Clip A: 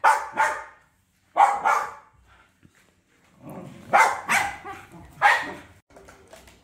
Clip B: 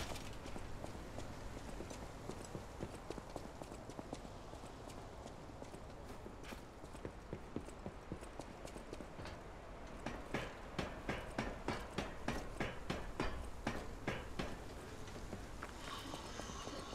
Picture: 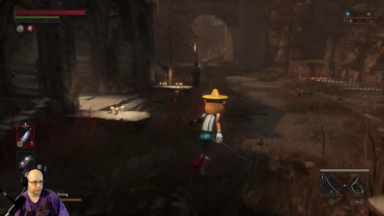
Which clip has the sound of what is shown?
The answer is B